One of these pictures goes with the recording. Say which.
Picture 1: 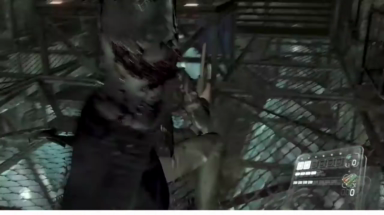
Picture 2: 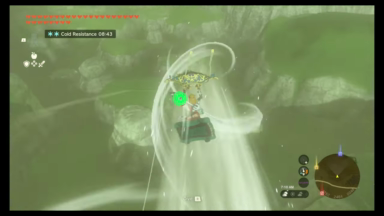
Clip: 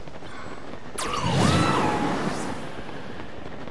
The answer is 2